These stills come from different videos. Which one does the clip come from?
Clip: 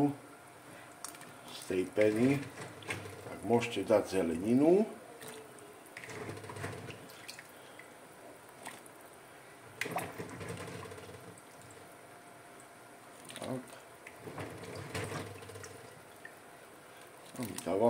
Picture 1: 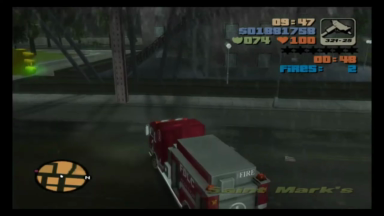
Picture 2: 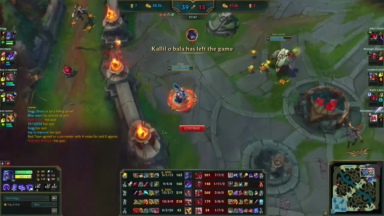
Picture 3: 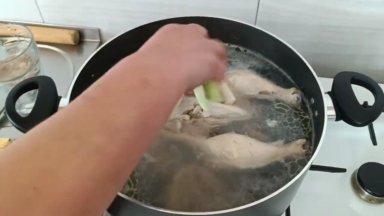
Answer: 3